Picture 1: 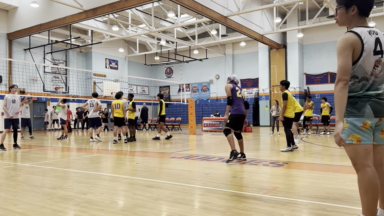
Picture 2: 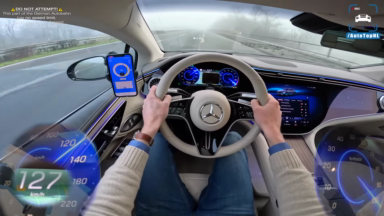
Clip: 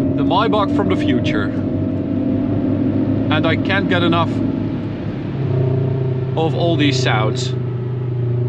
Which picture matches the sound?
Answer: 2